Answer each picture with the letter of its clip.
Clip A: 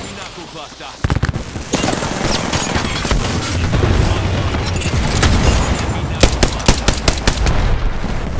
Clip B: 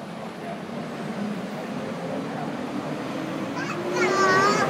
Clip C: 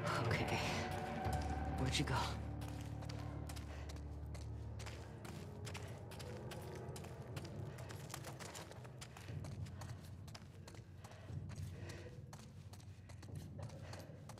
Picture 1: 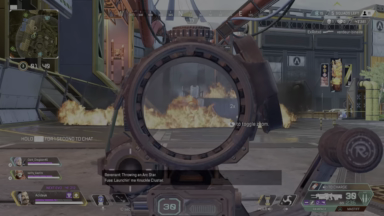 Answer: A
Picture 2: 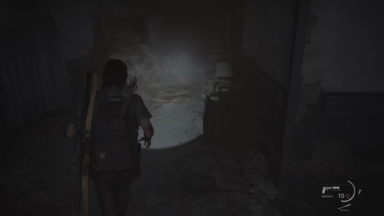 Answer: C